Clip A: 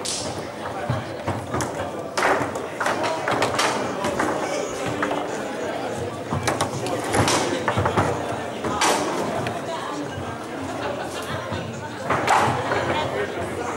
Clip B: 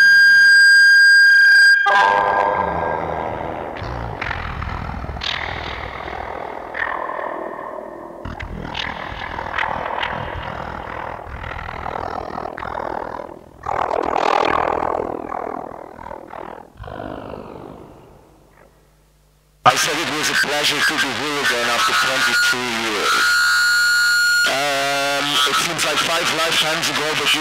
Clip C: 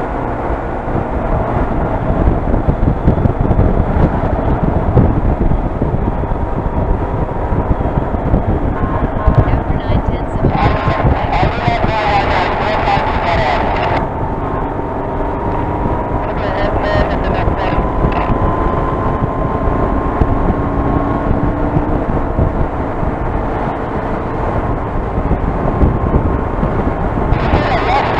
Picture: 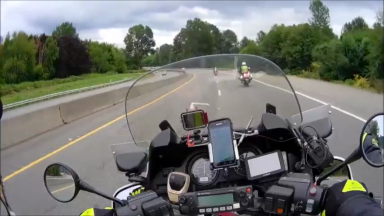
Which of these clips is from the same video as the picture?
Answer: C